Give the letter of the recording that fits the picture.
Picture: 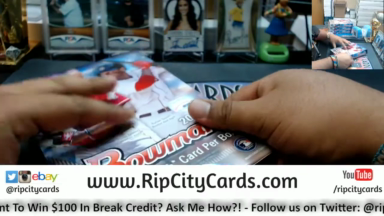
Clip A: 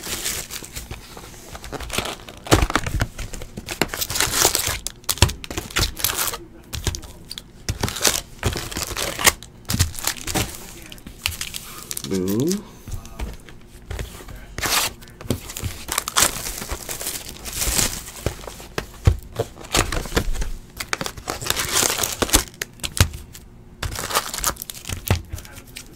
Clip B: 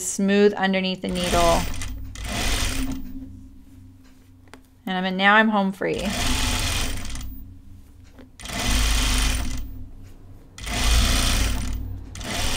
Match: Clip A